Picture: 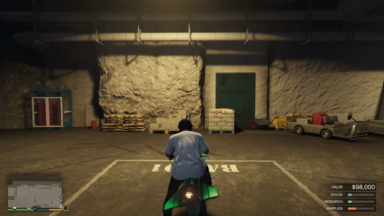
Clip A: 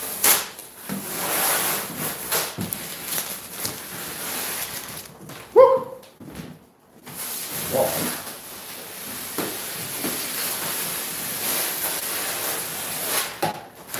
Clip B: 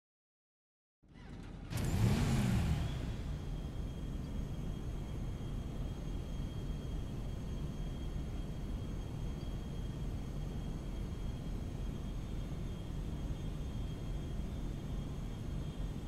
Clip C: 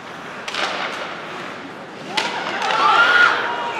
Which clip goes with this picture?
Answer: B